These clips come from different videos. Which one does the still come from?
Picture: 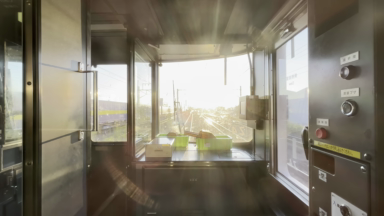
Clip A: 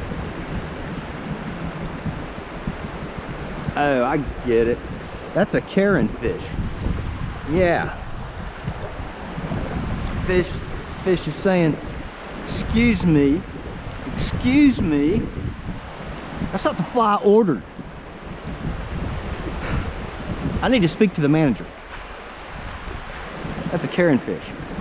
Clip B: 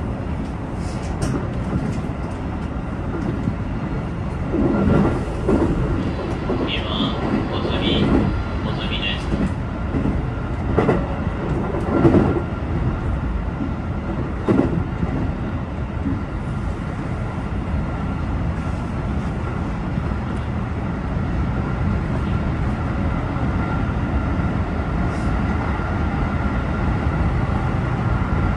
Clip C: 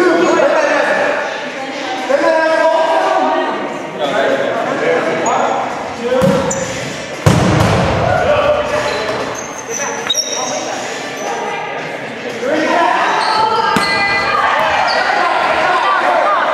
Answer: B